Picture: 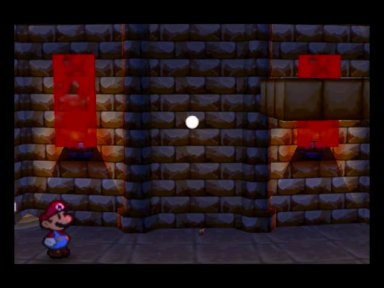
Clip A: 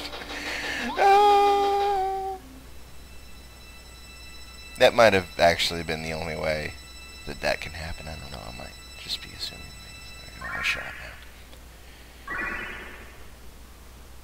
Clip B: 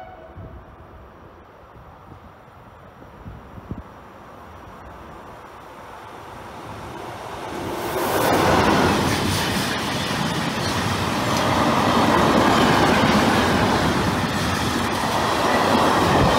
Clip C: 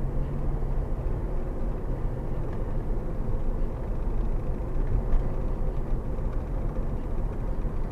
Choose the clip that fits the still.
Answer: A